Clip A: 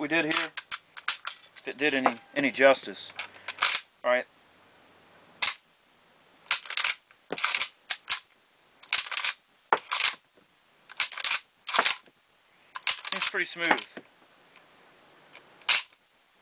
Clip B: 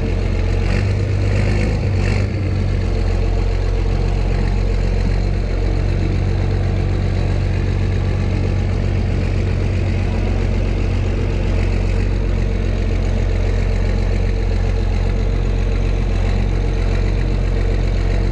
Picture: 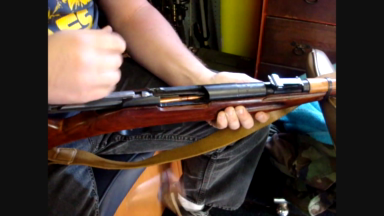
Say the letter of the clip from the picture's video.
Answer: A